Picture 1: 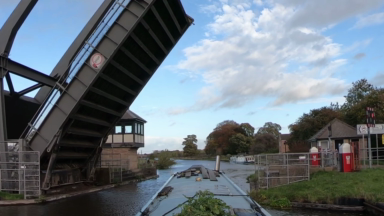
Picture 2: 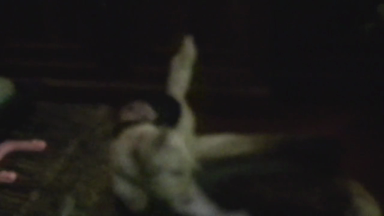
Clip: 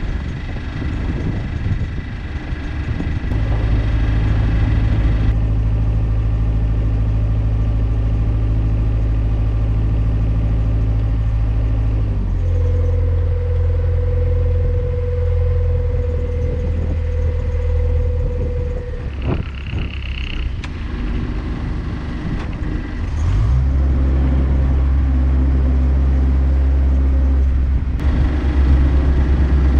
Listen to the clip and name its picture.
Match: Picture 1